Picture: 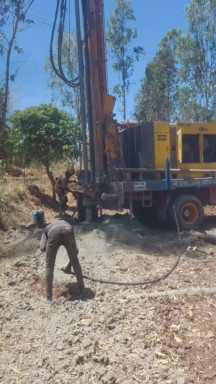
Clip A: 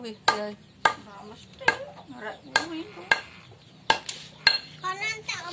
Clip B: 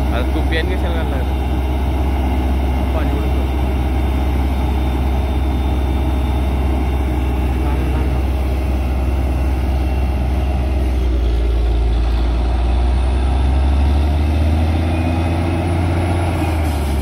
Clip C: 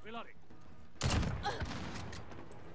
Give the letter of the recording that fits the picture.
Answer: B